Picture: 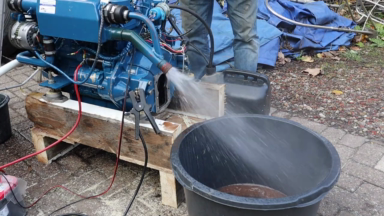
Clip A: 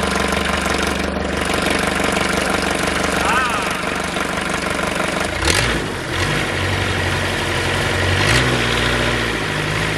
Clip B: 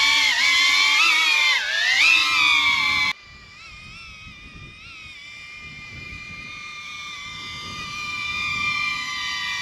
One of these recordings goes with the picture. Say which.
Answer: A